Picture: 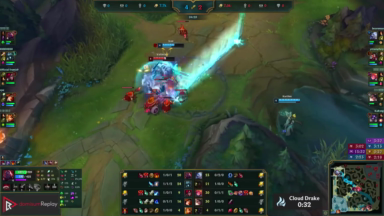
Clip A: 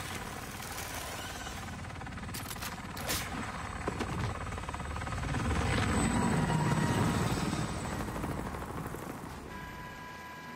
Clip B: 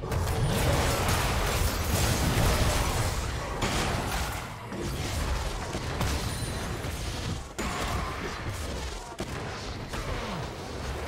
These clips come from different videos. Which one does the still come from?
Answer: B